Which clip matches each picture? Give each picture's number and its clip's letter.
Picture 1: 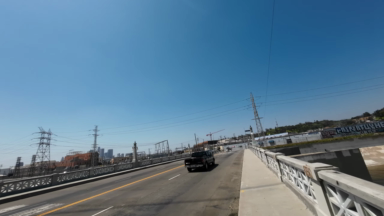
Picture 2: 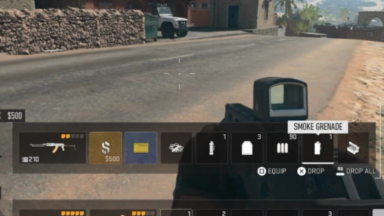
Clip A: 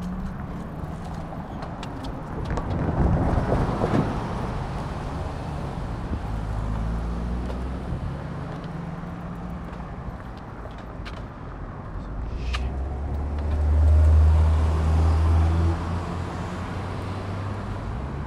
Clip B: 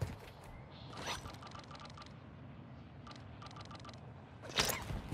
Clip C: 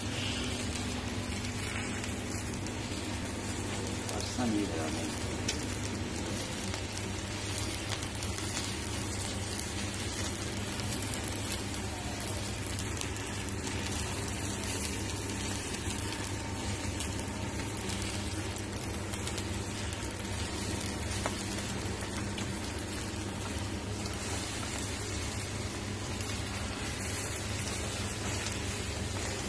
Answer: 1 A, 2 B